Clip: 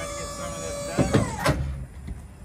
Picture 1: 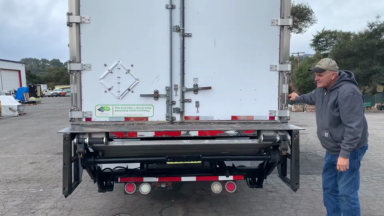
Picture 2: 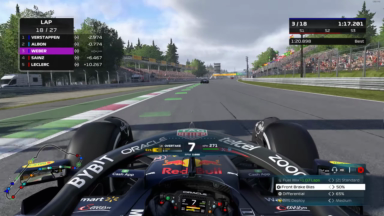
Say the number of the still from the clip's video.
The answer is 1